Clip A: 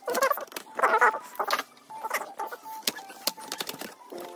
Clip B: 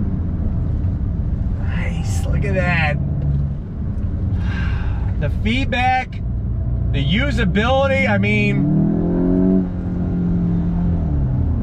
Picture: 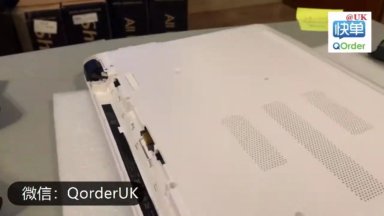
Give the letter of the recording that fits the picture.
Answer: A